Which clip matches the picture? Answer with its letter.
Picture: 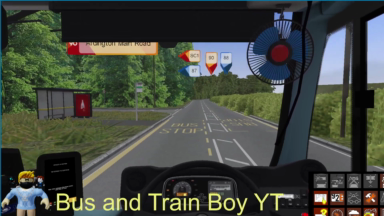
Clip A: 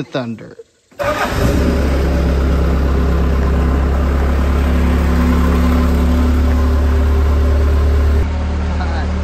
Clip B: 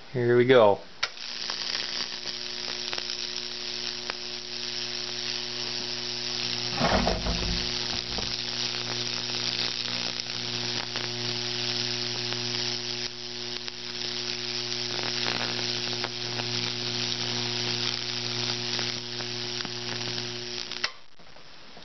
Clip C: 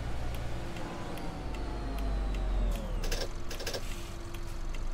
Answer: C